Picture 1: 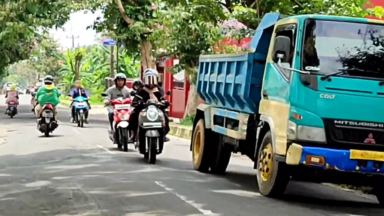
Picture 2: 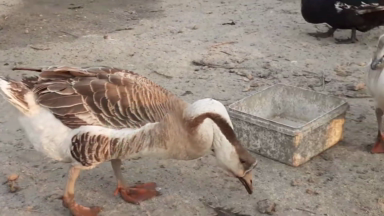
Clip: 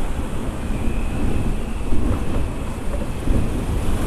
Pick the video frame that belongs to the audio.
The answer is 1